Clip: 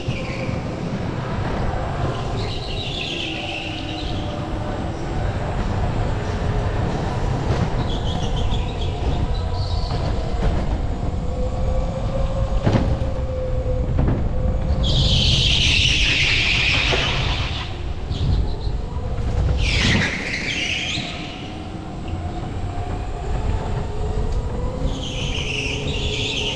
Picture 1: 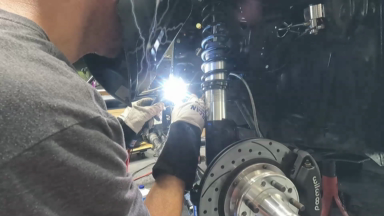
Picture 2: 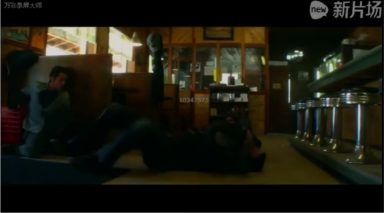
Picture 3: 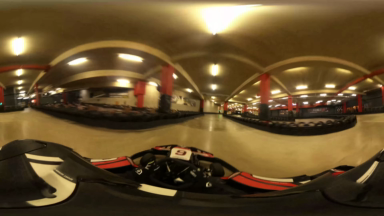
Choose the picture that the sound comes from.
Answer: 3